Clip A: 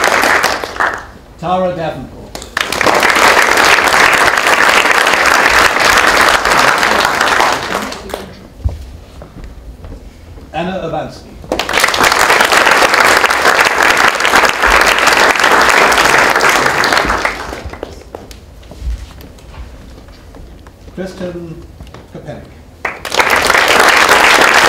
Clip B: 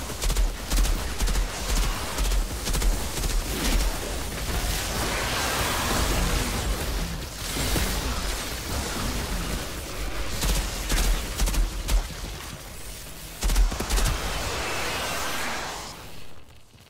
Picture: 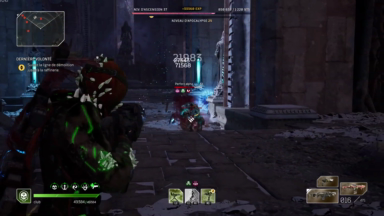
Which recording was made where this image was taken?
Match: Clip B